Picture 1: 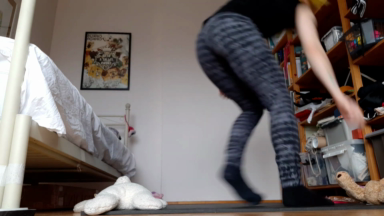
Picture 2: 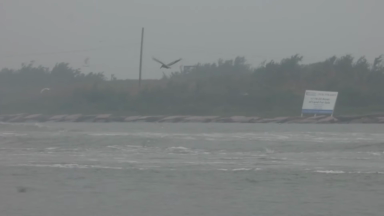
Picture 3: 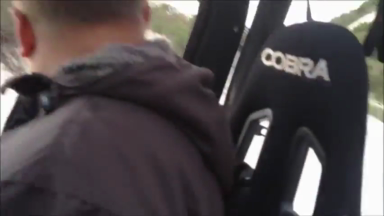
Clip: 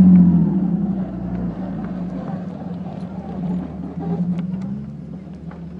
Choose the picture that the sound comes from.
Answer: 3